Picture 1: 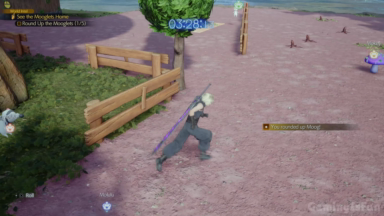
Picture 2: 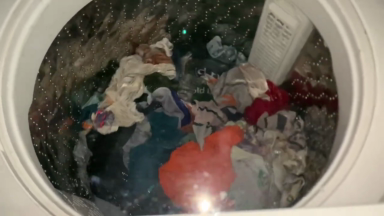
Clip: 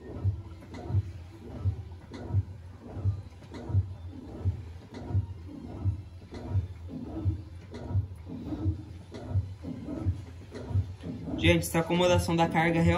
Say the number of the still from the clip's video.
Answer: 2